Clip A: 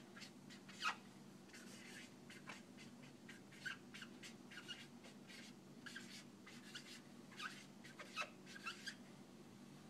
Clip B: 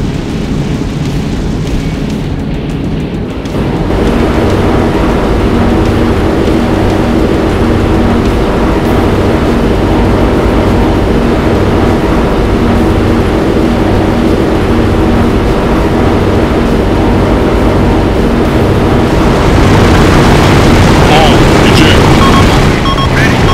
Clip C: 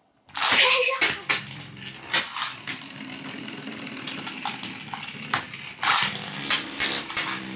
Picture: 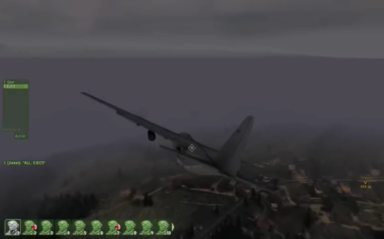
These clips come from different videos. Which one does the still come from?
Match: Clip B